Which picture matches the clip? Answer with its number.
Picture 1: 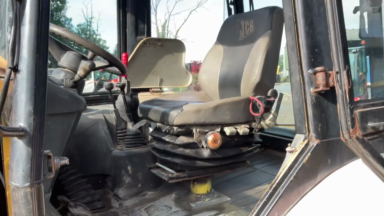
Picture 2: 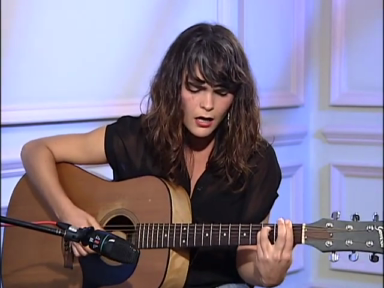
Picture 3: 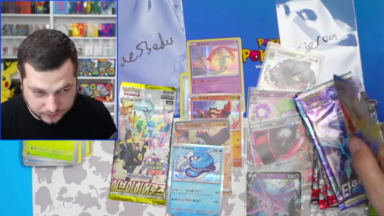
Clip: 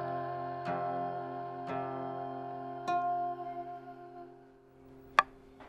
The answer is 2